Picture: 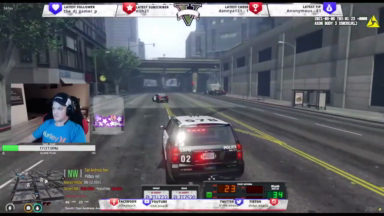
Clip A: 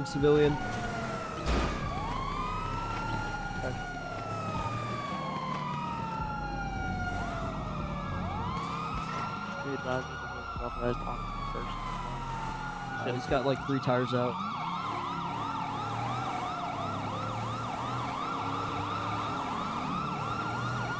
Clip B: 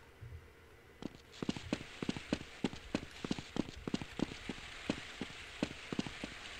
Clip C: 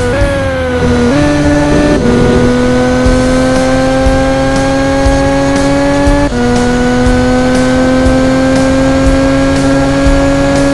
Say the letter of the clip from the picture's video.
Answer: A